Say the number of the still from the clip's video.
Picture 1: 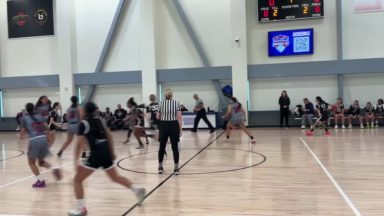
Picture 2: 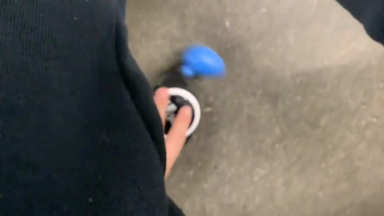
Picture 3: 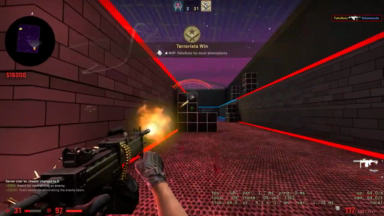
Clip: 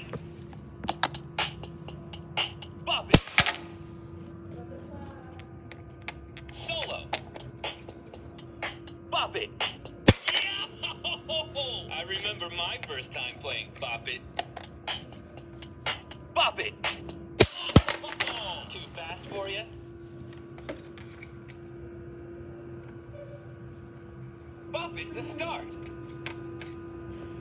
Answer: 2